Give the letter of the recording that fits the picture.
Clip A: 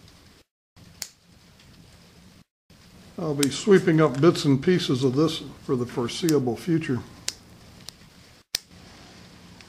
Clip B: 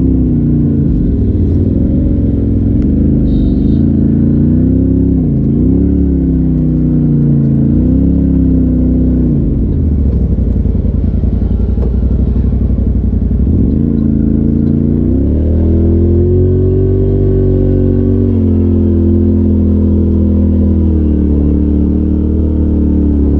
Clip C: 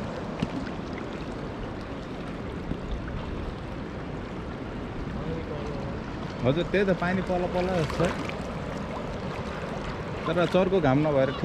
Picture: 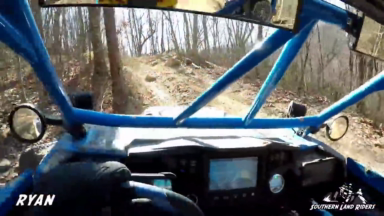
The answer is B